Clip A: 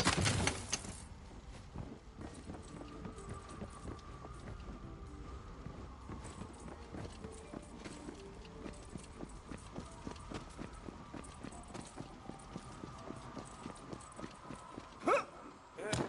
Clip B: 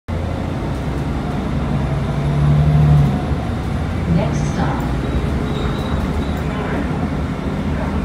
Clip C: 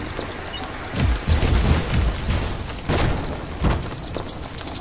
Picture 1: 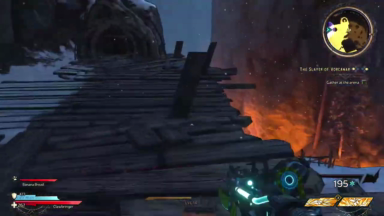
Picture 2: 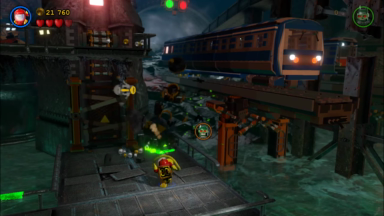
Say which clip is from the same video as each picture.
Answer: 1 A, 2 C